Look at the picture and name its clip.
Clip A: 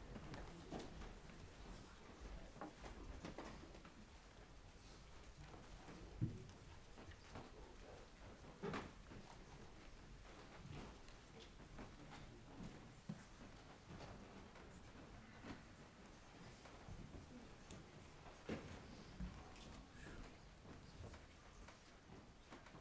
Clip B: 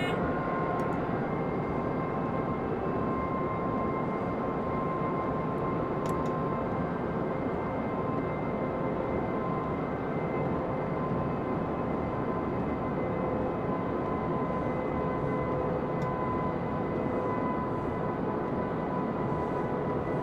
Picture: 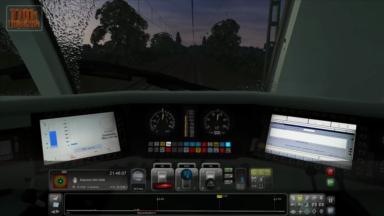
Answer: B